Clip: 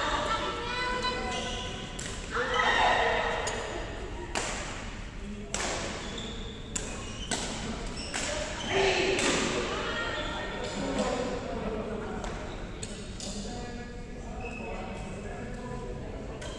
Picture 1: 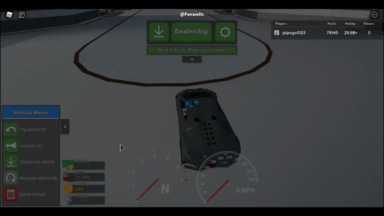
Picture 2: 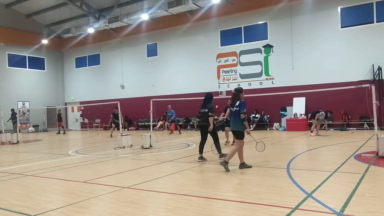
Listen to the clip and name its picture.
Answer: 2